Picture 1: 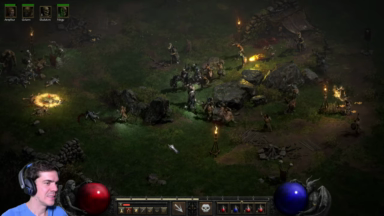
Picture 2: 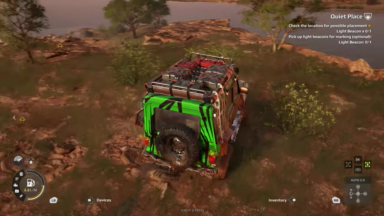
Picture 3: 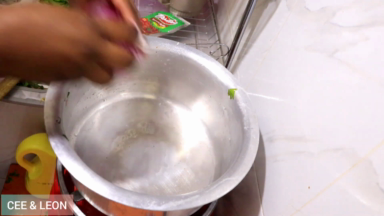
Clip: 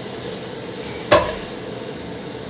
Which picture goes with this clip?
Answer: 3